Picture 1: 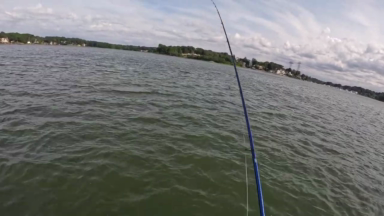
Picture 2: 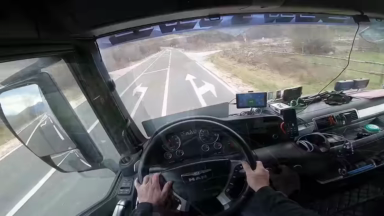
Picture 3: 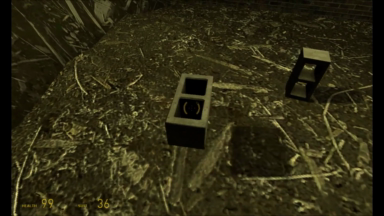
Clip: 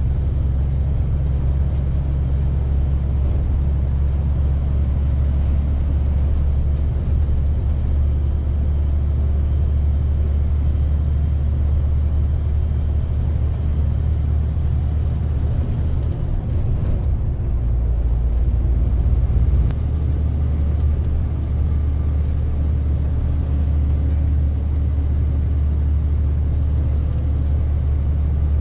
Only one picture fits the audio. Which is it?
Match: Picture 2